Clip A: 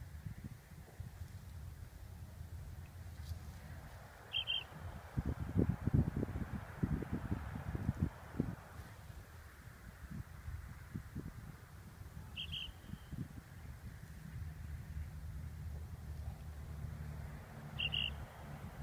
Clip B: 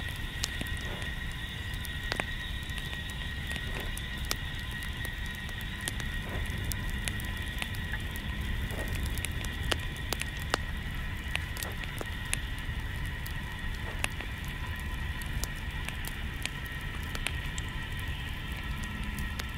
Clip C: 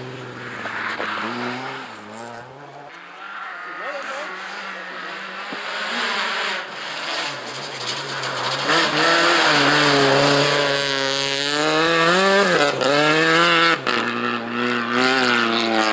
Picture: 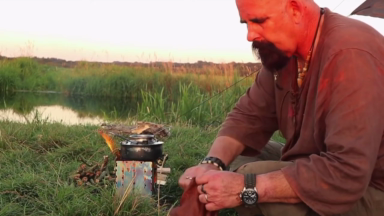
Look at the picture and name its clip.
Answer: B